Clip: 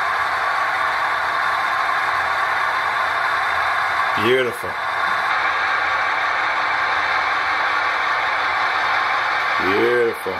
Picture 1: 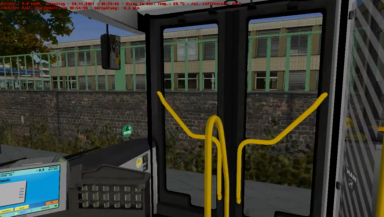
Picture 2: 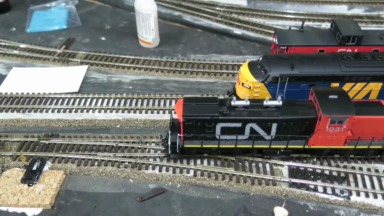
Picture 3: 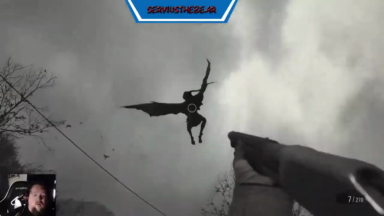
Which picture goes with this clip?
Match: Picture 2